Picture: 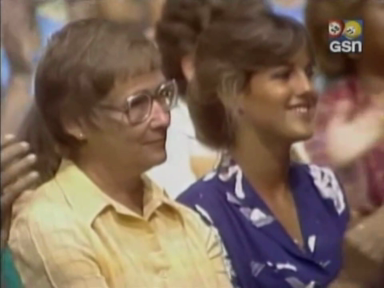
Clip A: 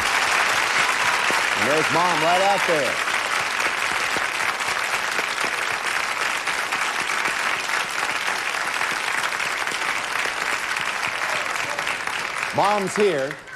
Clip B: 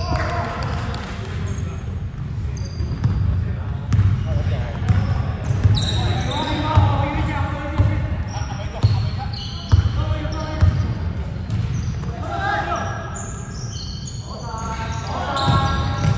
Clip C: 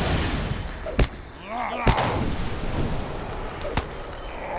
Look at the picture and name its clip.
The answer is A